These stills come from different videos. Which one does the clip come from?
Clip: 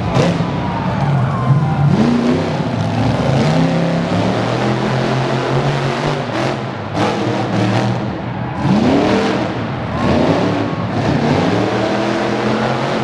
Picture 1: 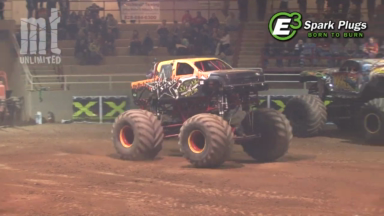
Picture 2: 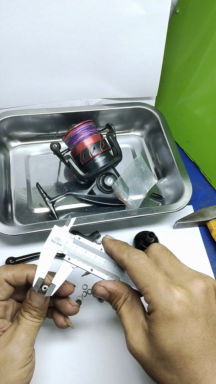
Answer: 1